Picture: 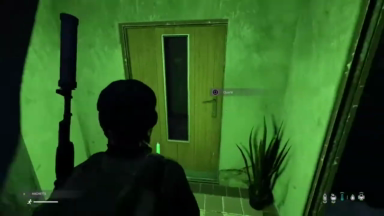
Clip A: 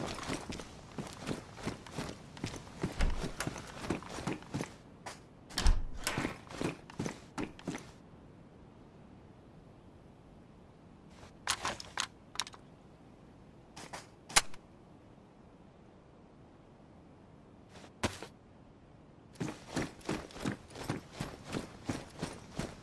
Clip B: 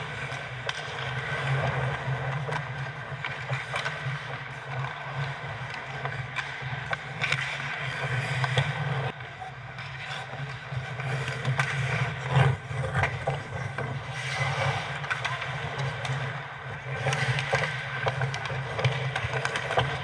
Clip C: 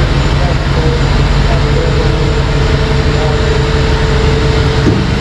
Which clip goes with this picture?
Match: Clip A